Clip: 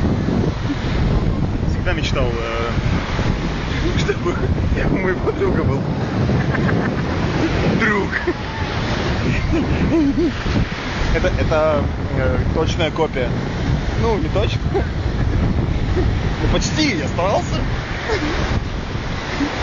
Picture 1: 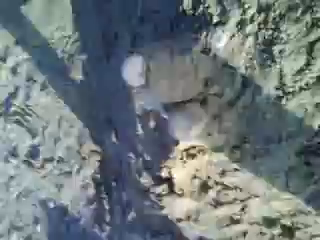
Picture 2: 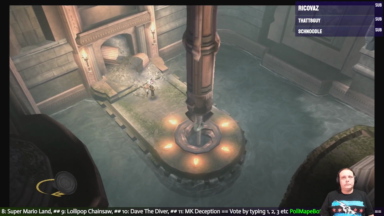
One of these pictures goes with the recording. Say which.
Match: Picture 1